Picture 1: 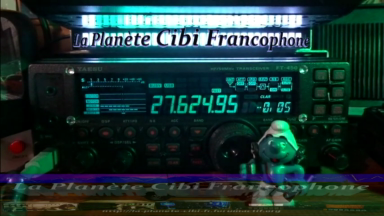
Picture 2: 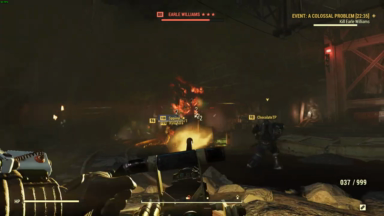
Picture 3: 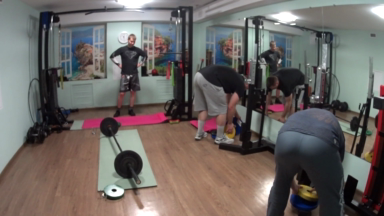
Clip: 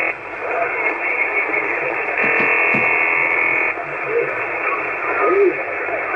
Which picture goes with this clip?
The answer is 1